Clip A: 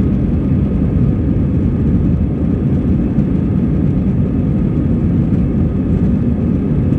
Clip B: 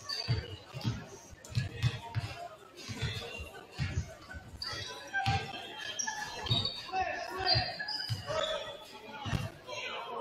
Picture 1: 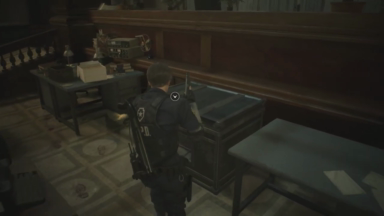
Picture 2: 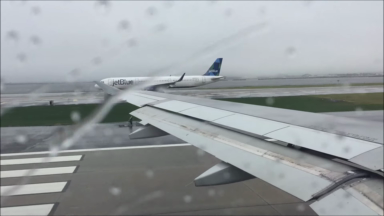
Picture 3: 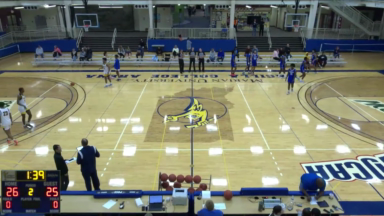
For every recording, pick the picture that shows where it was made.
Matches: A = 2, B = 3